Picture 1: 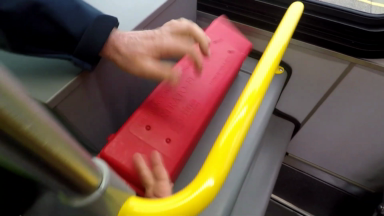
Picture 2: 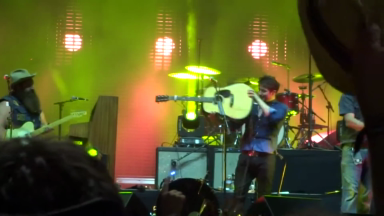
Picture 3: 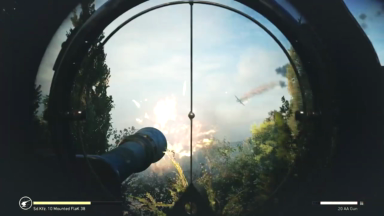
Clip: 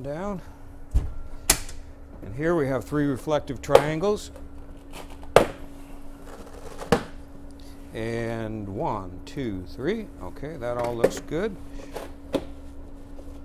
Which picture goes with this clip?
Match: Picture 1